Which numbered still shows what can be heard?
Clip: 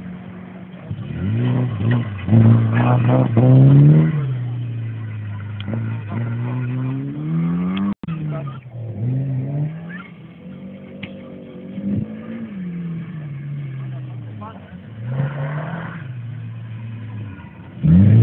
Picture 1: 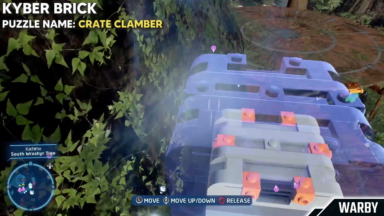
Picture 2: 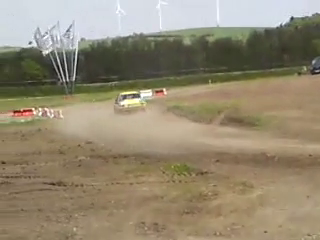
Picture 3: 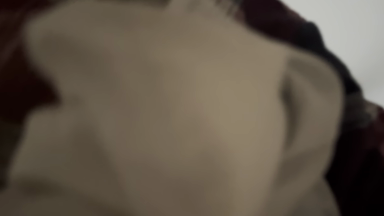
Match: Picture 2